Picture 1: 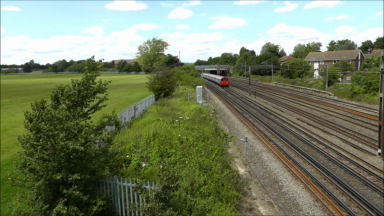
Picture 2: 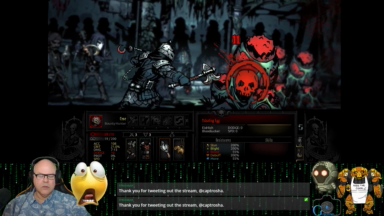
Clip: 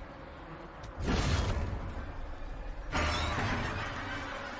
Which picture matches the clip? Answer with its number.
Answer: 2